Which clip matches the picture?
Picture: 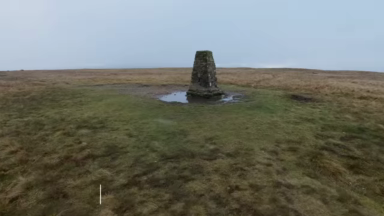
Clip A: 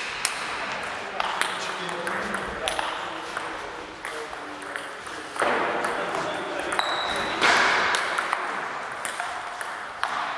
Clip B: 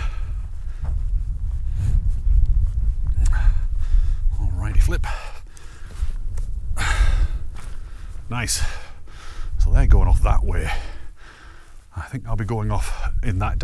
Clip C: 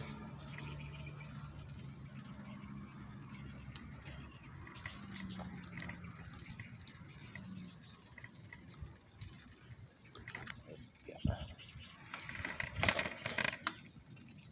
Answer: B